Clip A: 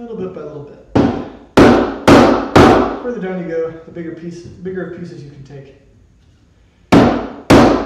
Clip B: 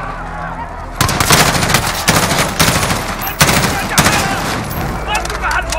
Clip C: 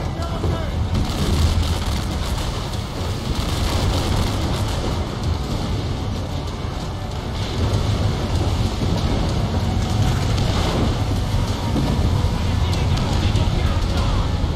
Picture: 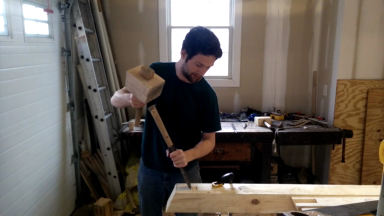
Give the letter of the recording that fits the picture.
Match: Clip A